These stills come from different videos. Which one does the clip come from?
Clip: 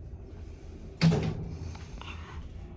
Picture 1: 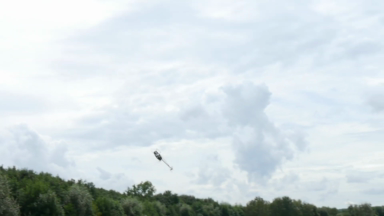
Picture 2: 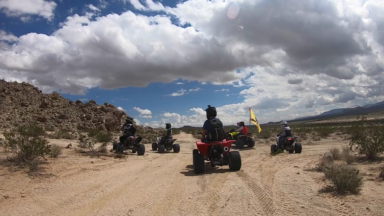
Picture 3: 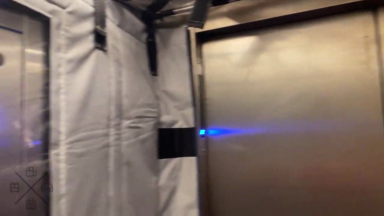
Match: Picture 3